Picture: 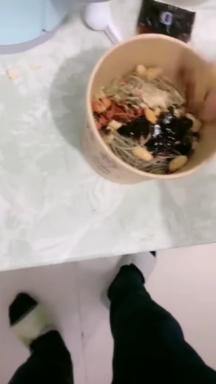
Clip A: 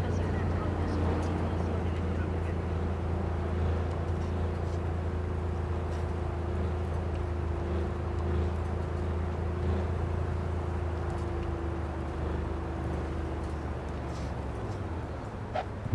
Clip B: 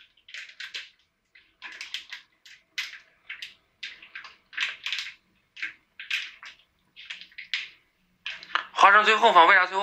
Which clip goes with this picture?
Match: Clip B